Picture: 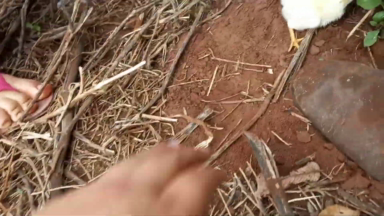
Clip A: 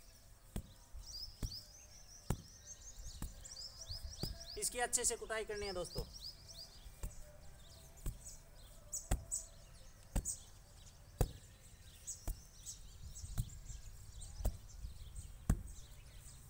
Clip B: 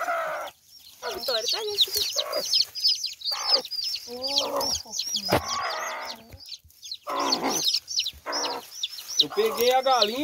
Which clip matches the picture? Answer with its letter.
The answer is B